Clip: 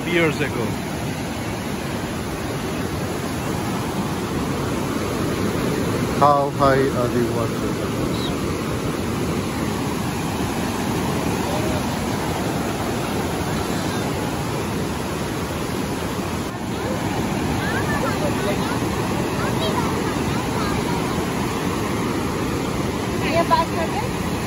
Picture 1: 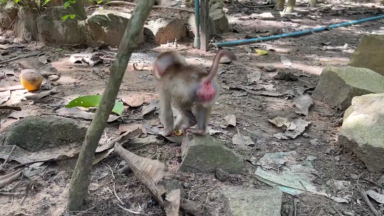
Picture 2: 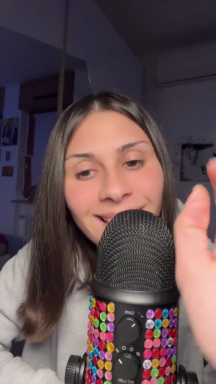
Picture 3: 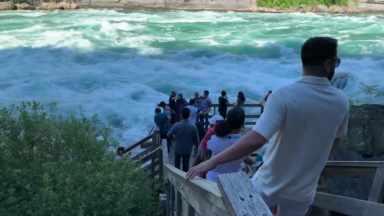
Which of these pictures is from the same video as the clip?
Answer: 3